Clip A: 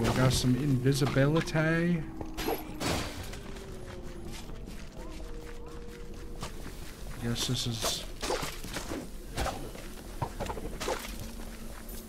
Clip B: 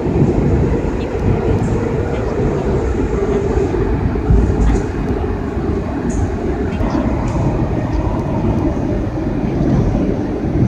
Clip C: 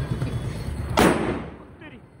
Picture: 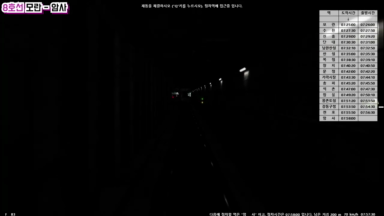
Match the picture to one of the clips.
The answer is B